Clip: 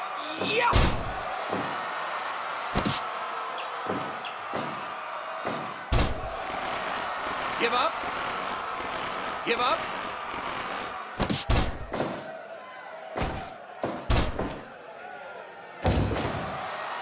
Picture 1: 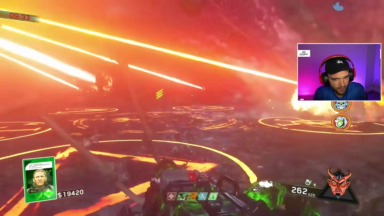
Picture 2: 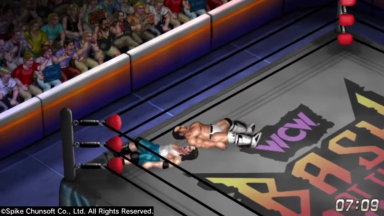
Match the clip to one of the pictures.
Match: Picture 2